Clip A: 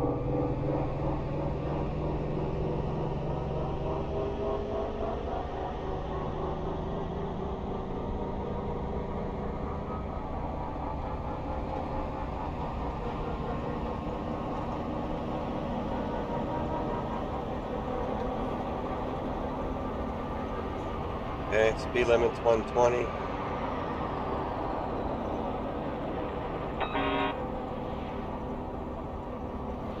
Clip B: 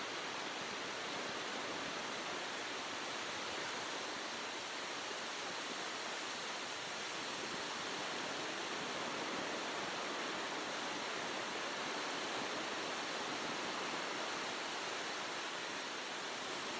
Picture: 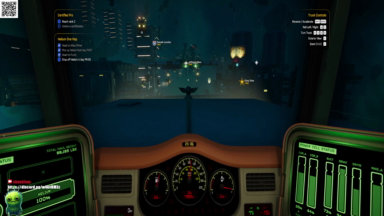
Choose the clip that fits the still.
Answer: A